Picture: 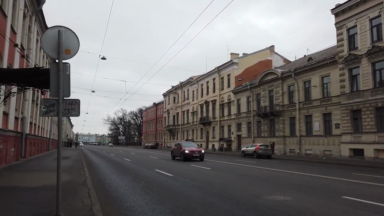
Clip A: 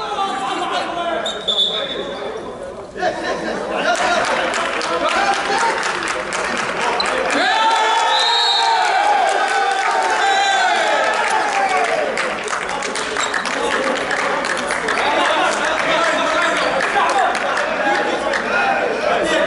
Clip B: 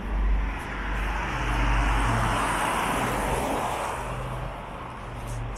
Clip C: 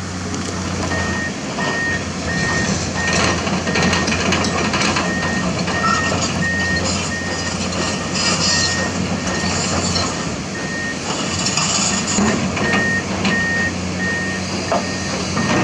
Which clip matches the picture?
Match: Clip B